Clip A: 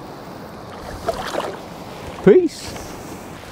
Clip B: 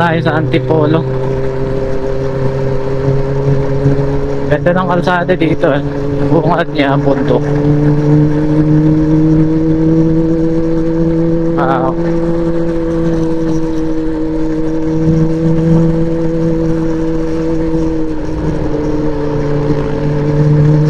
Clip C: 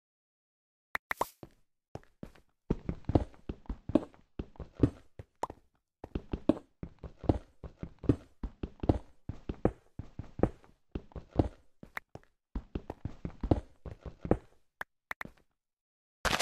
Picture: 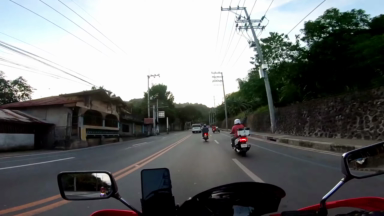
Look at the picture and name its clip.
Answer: B